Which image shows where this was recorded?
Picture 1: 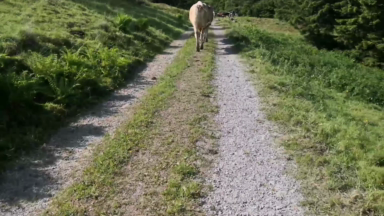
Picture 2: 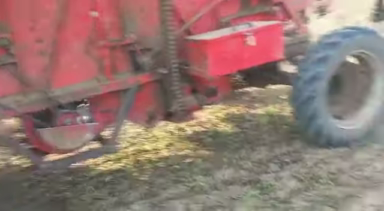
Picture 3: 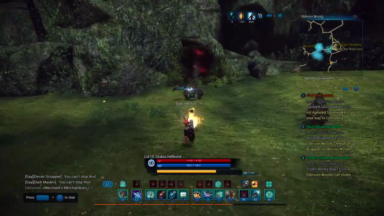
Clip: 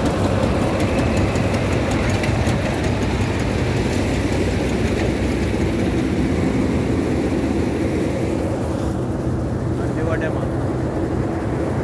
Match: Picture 2